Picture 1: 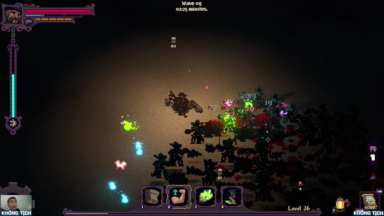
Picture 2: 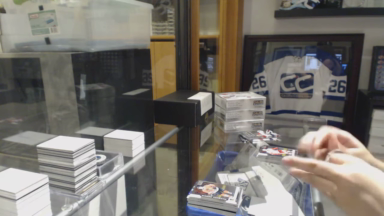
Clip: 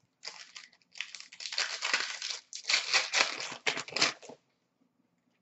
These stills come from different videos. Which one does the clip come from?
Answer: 2